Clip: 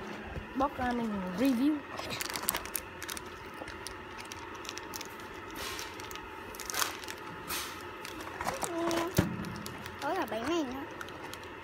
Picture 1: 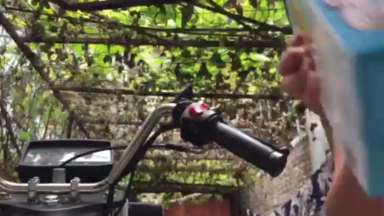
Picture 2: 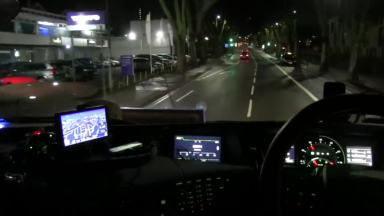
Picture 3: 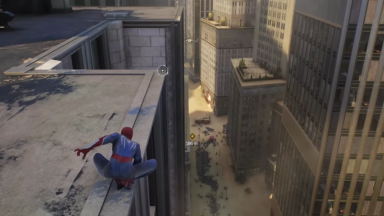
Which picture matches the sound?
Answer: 1